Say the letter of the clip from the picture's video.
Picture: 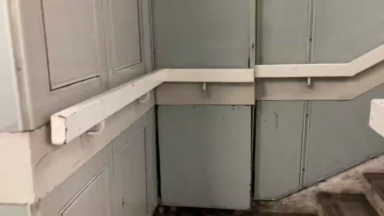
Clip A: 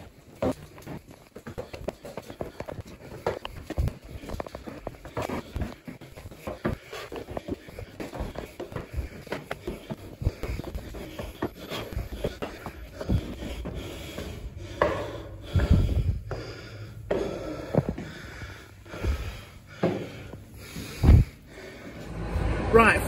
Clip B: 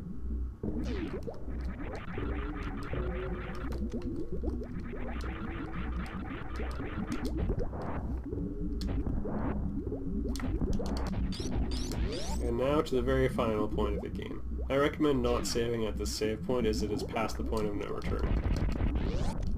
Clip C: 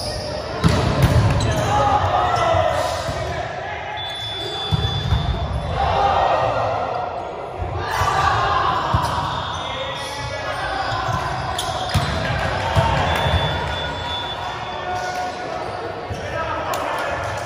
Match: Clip A